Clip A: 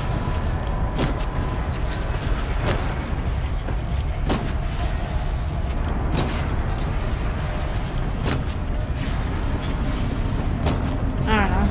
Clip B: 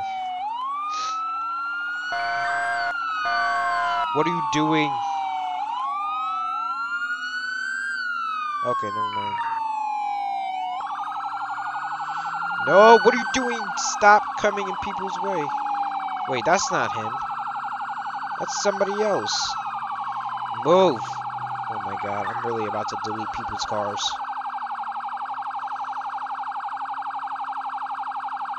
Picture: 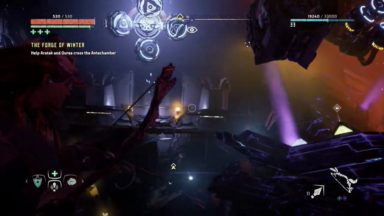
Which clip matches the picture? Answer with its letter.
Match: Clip A